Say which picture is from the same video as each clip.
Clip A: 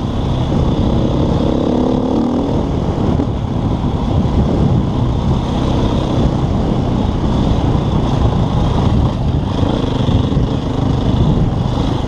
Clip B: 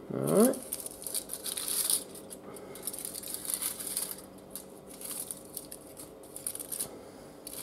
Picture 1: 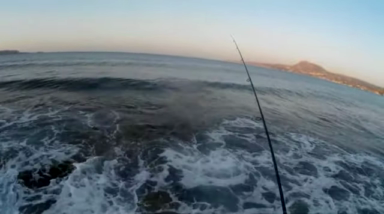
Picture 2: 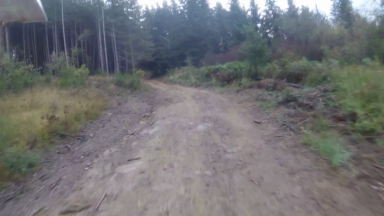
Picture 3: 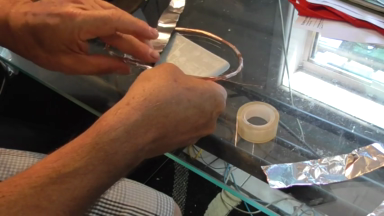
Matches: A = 2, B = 3